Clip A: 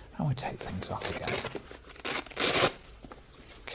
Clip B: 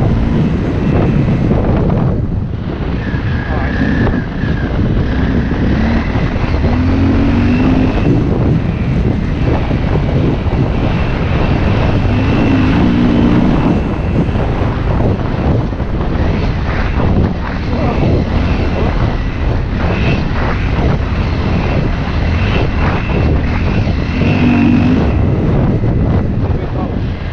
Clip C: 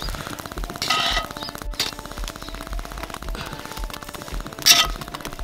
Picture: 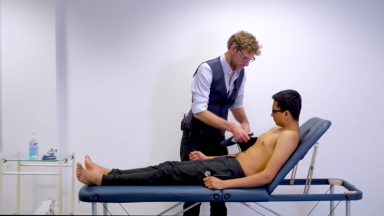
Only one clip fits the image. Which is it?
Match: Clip A